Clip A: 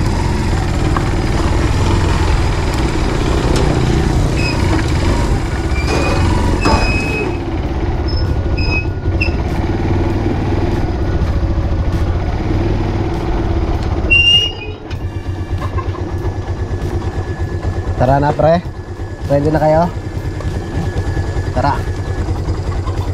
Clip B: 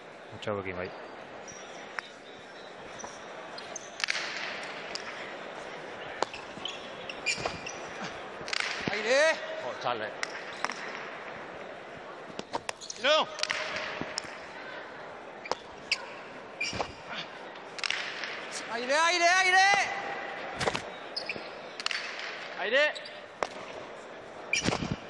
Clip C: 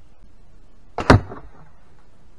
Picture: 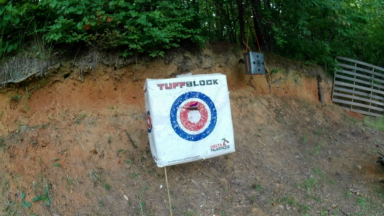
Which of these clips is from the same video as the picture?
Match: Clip C